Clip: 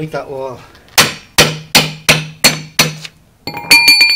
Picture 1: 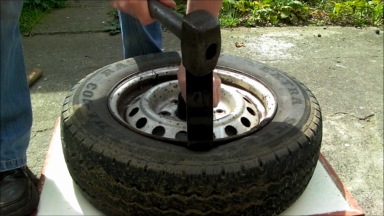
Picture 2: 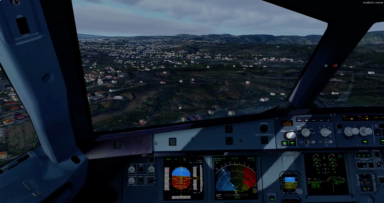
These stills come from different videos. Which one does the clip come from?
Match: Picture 1